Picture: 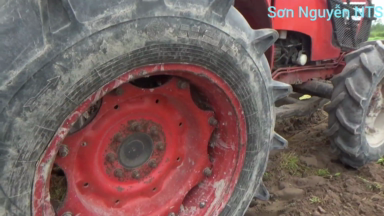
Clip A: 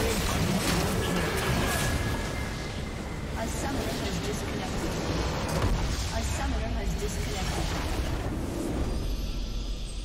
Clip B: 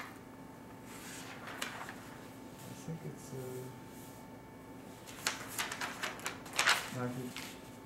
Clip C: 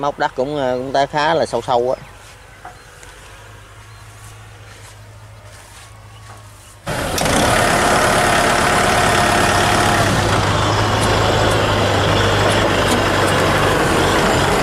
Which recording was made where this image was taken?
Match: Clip C